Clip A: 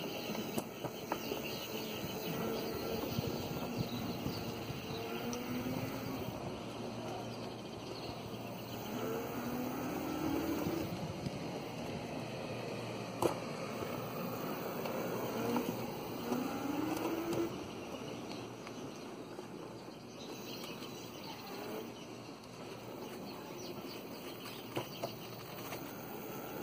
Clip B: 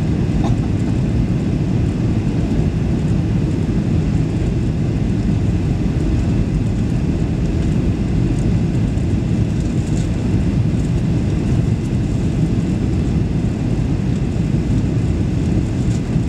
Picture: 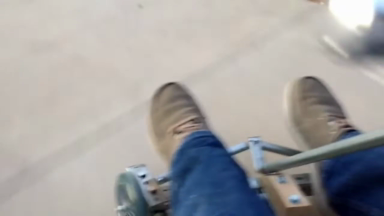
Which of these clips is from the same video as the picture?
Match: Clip A